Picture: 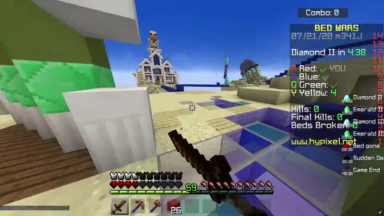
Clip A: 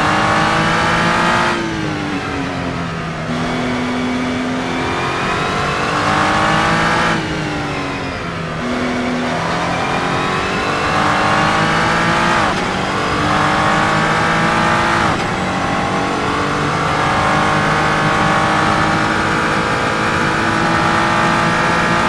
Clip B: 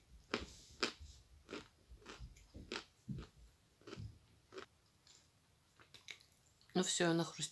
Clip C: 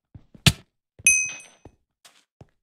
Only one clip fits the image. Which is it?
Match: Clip C